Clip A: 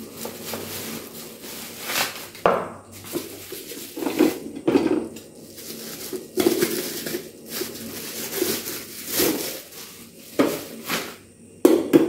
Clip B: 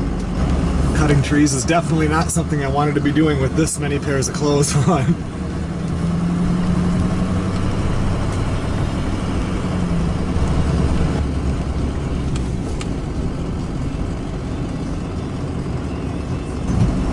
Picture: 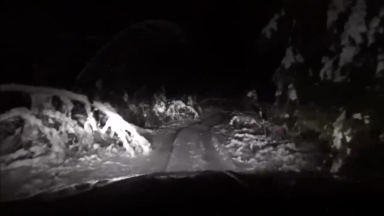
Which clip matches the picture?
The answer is B